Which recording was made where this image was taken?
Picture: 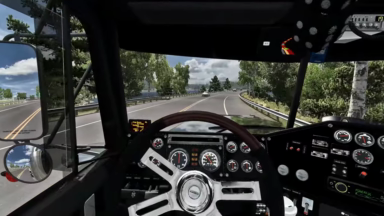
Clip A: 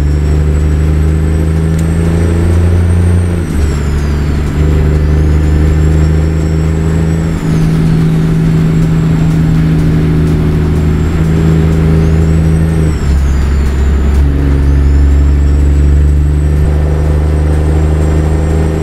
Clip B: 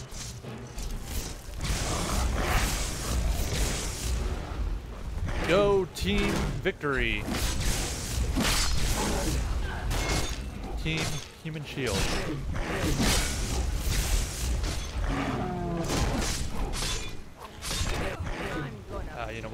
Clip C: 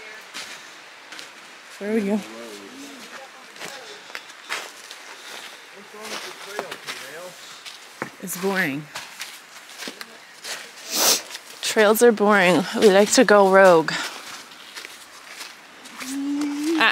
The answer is A